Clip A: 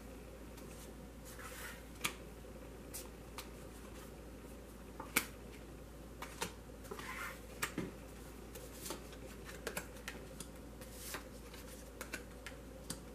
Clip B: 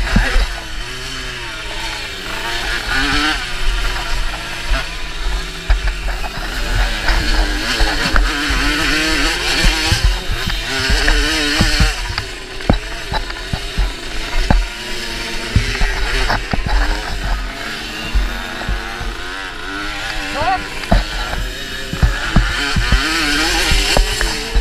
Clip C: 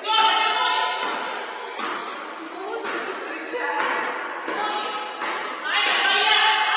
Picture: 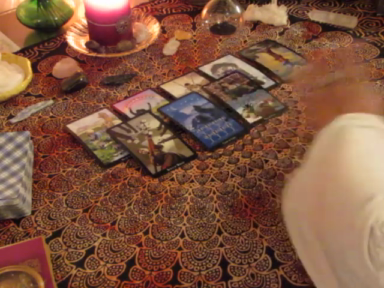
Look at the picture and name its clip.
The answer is A